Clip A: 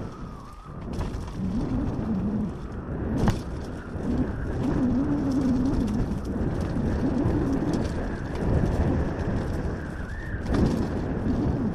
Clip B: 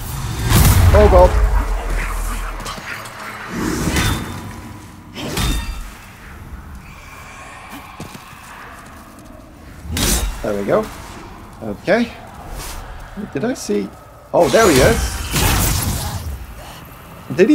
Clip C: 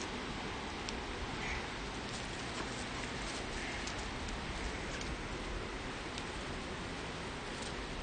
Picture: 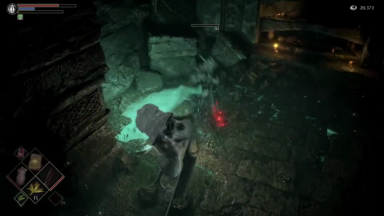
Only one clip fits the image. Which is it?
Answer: B